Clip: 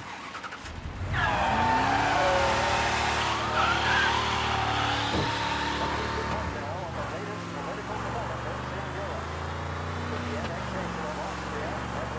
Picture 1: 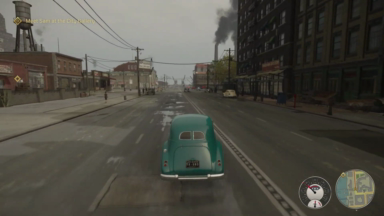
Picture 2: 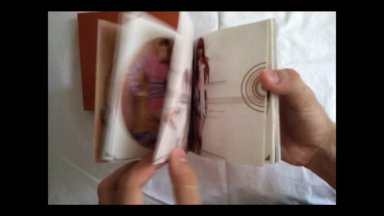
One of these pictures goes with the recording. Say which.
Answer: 1